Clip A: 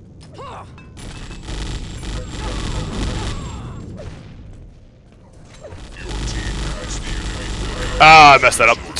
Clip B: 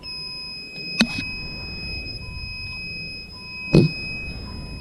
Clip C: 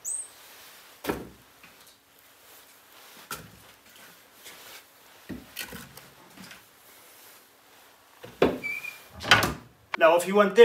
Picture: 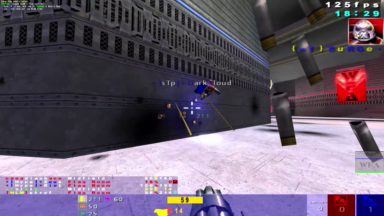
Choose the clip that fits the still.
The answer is A